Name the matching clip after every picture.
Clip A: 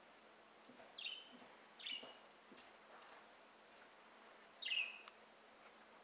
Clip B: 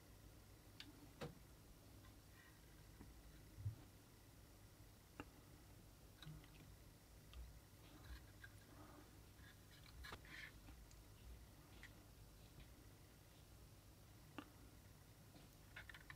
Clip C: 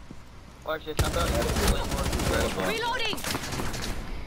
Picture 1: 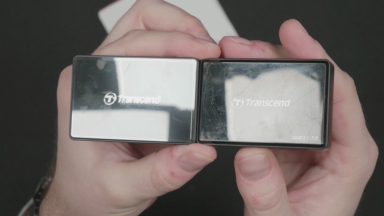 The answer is B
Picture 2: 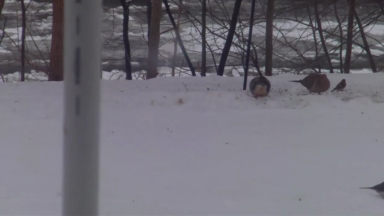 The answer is A